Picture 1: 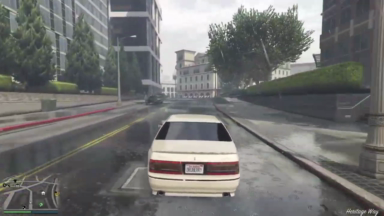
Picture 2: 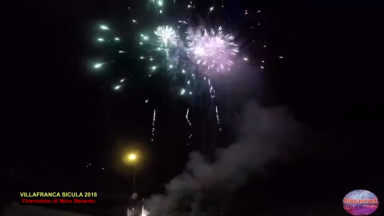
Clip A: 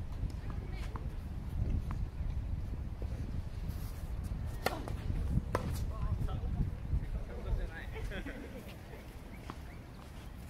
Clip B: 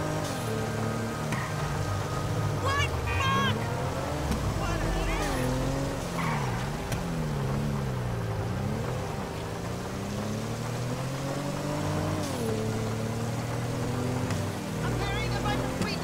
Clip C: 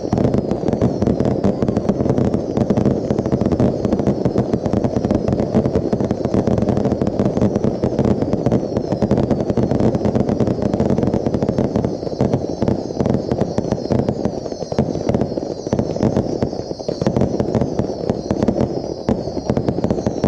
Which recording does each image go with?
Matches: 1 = B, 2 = C